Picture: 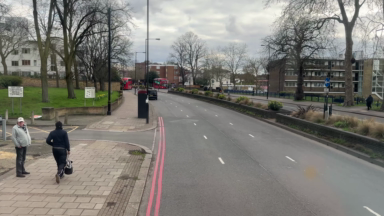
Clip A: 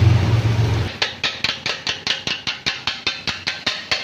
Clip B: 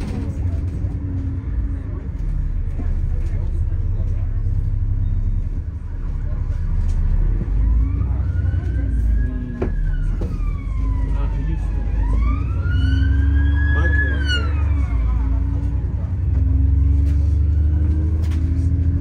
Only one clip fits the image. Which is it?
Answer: B